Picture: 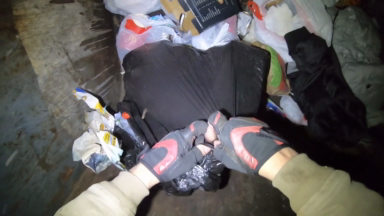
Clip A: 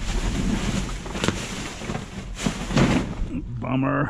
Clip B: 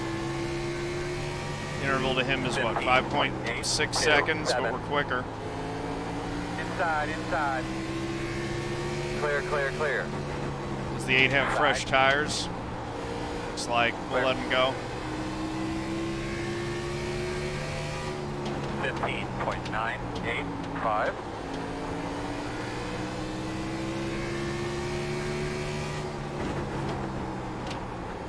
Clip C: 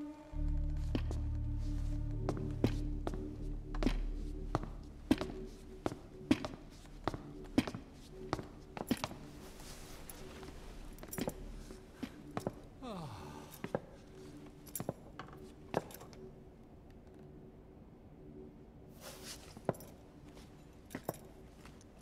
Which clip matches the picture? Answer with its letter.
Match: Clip A